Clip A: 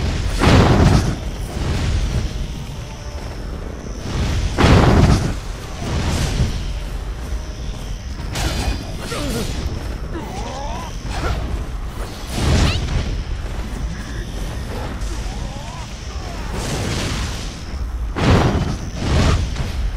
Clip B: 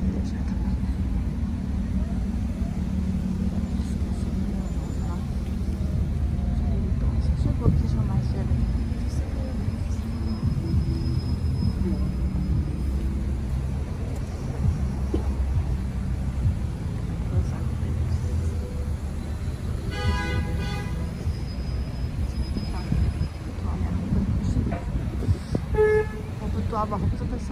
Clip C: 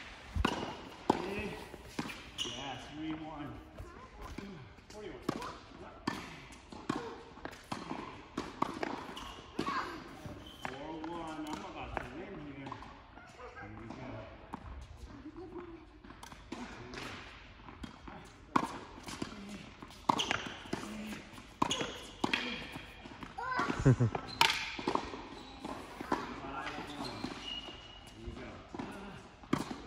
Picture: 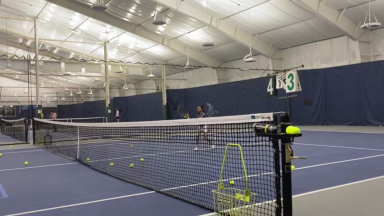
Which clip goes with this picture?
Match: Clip C